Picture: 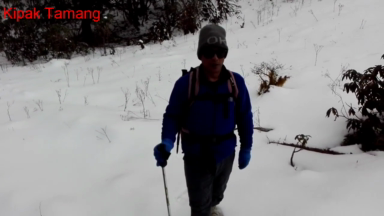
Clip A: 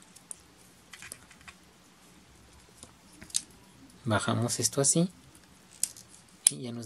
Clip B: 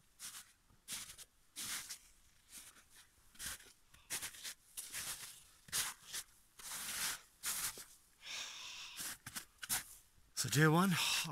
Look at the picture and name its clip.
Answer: B